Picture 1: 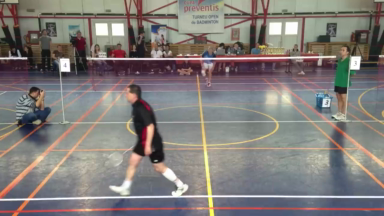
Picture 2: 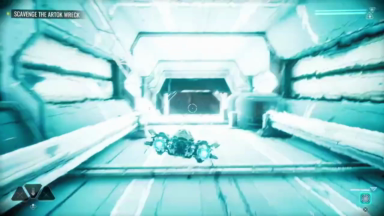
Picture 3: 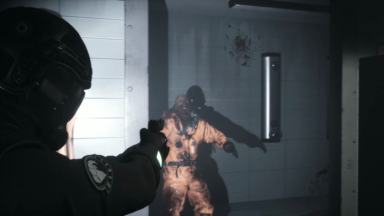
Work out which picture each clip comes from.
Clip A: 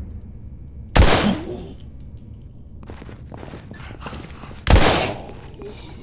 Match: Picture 3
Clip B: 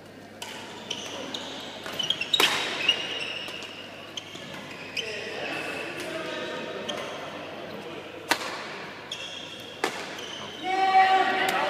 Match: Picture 1